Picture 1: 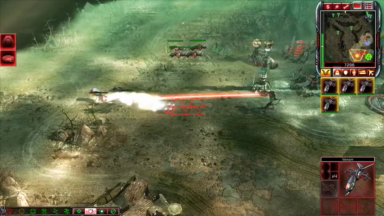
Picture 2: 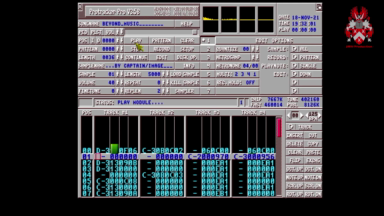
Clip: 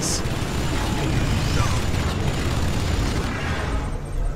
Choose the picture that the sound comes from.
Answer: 1